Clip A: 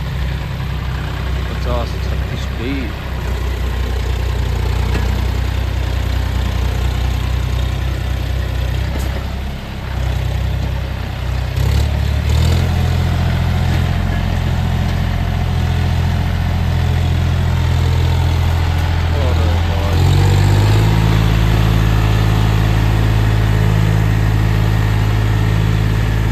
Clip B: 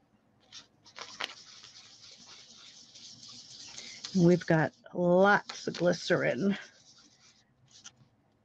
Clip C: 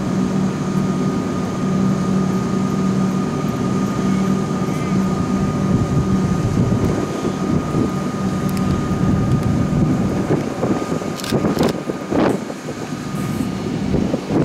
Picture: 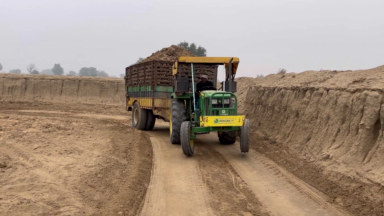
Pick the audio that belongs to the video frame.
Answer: A